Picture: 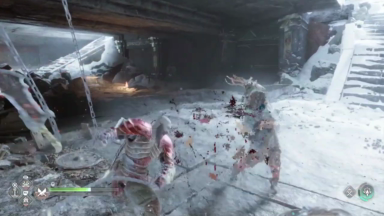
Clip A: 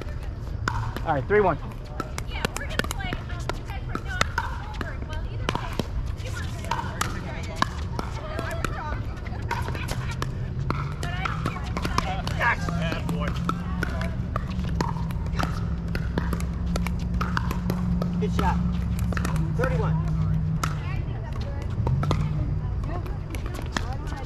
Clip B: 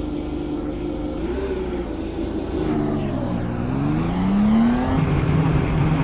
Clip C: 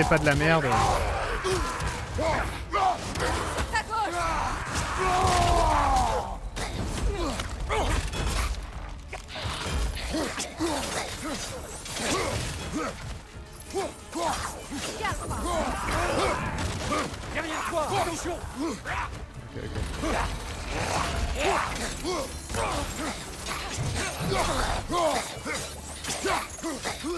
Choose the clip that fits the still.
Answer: C